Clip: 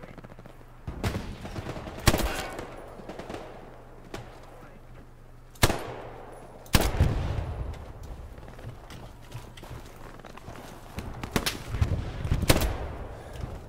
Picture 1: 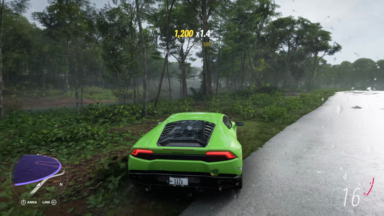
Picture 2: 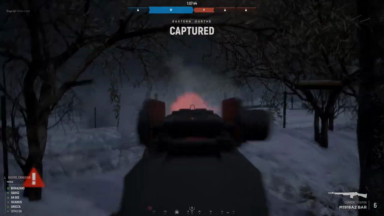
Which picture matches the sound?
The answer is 2